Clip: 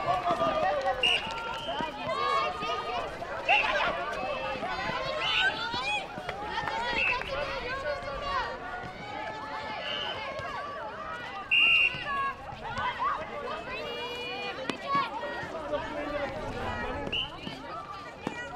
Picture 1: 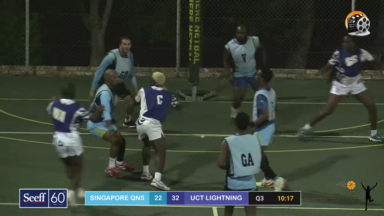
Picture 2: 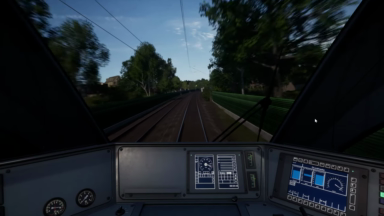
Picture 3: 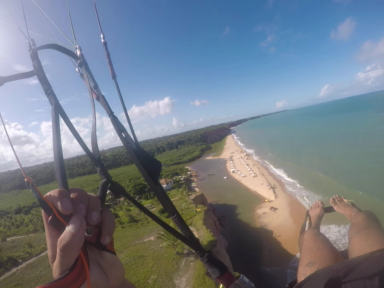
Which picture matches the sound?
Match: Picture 1